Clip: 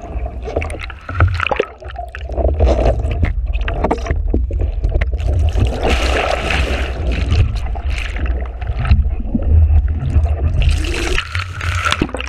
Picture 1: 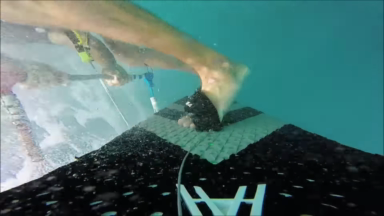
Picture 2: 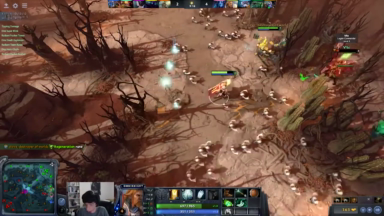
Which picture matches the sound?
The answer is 1